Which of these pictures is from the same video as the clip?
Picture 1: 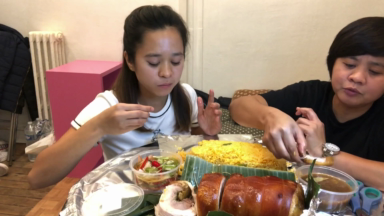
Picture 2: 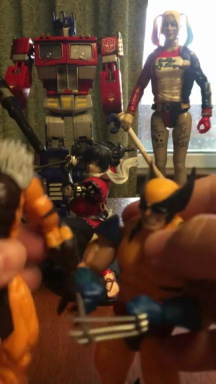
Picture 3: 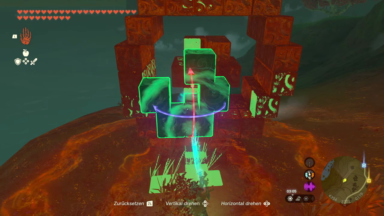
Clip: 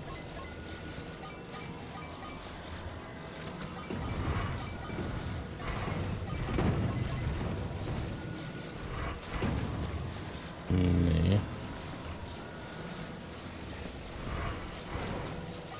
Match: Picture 3